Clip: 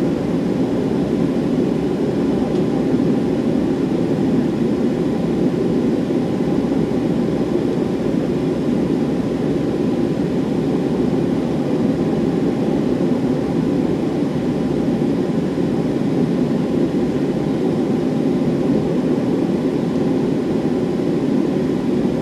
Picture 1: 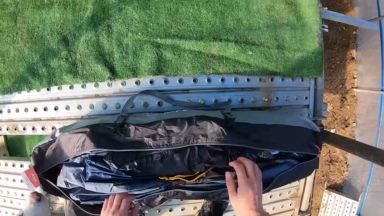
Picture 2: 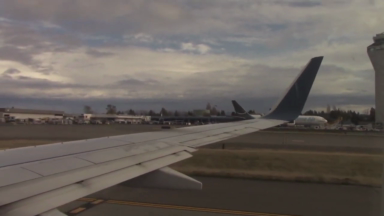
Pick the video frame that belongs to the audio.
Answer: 2